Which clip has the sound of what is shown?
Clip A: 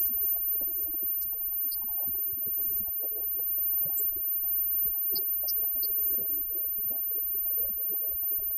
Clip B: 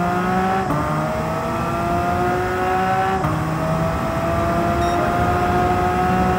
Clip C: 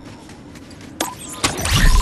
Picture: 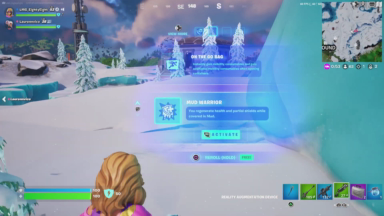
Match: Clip C